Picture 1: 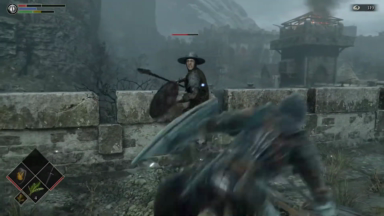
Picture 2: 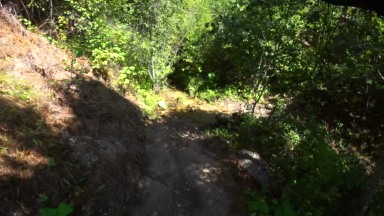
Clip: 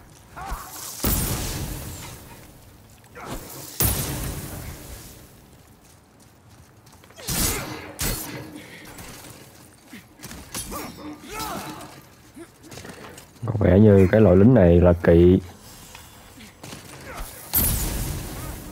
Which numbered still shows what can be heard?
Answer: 1